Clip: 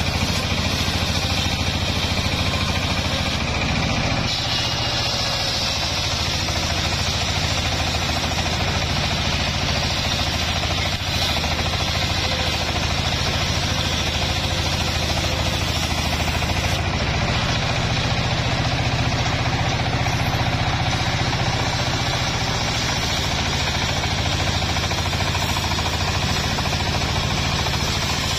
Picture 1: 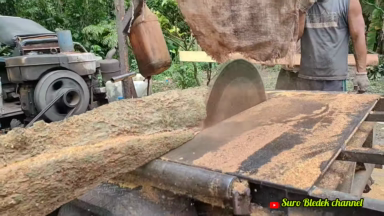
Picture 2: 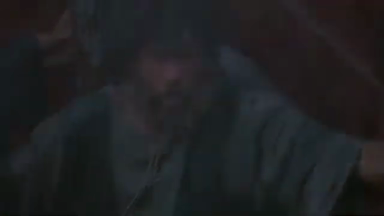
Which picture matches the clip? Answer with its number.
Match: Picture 1